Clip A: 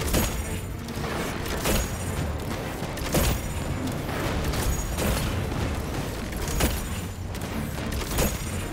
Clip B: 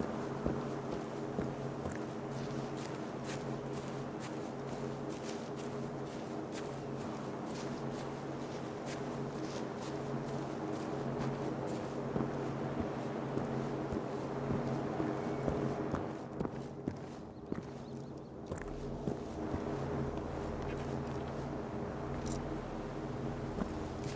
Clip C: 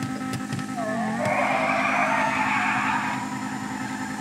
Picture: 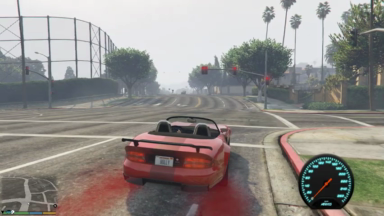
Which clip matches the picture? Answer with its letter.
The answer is C